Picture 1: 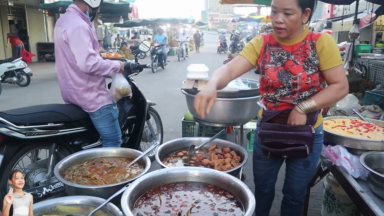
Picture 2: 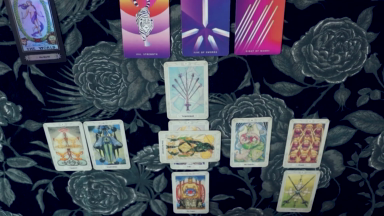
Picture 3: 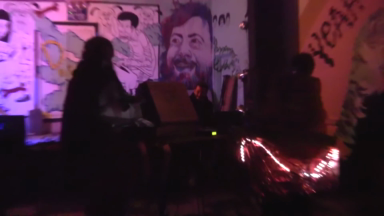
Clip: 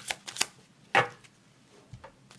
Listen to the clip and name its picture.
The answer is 2